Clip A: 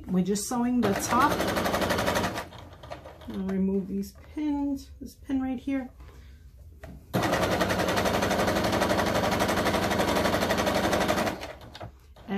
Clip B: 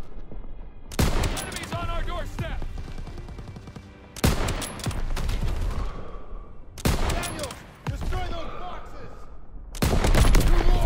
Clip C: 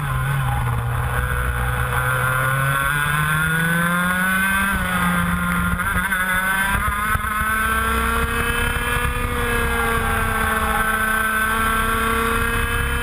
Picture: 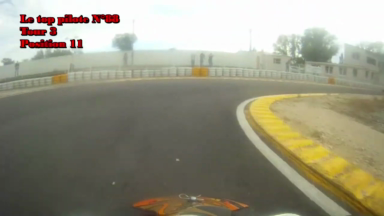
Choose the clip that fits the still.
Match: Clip C